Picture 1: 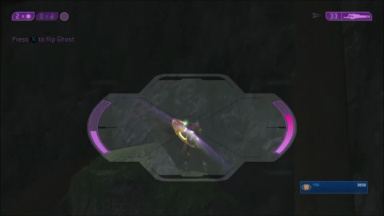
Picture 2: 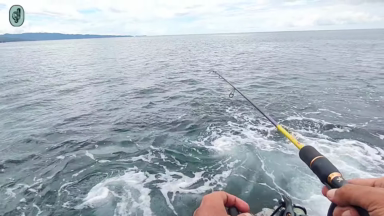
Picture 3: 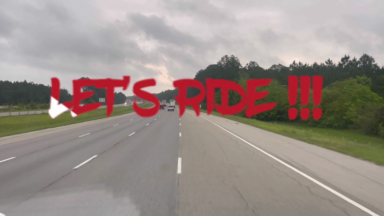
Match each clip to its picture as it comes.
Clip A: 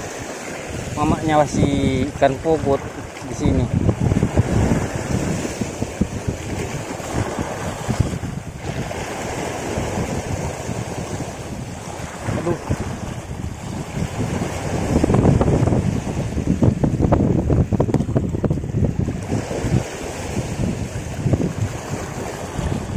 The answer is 2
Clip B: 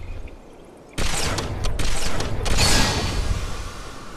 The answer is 1